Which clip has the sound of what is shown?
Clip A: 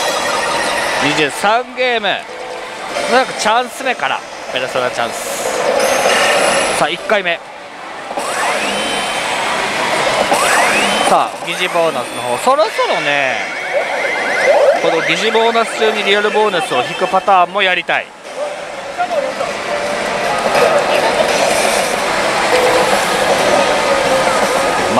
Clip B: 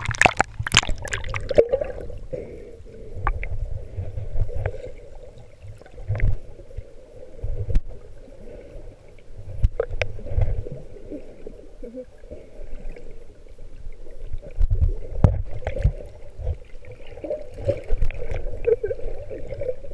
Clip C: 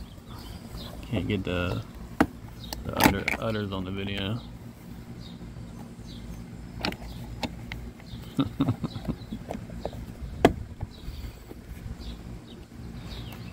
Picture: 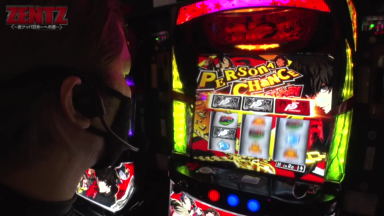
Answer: A